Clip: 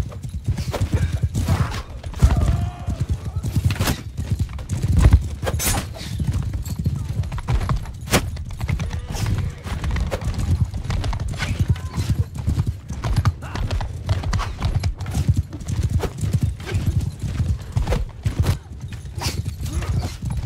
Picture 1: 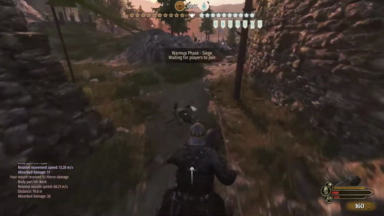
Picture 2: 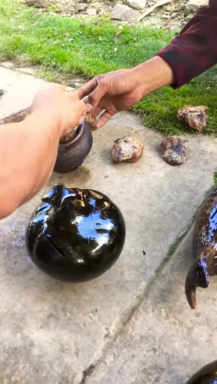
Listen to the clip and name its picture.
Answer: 1